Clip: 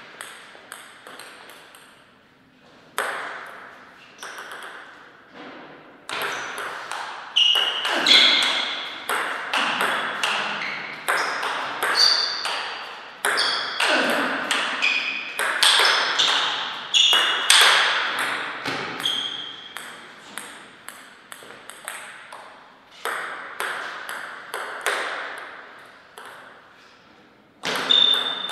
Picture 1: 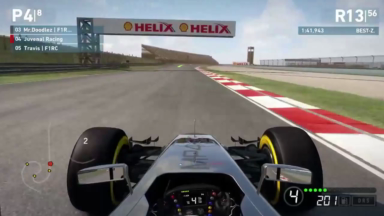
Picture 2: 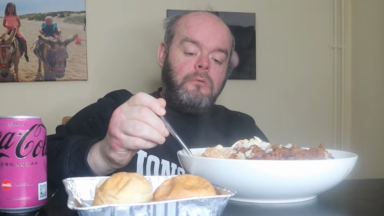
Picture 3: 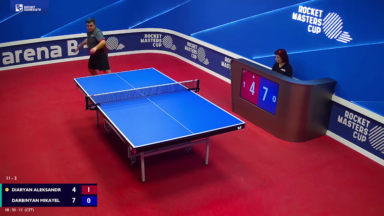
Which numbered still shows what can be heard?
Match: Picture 3